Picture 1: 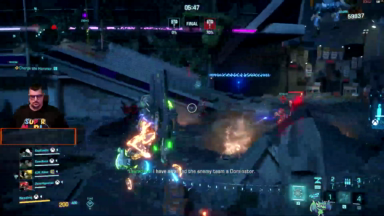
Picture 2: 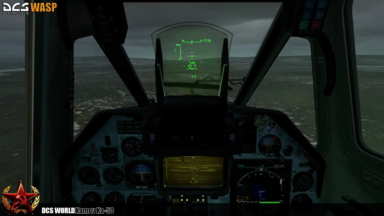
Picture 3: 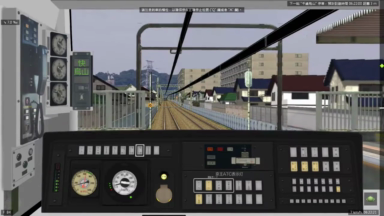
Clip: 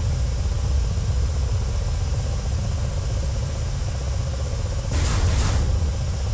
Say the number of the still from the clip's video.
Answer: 2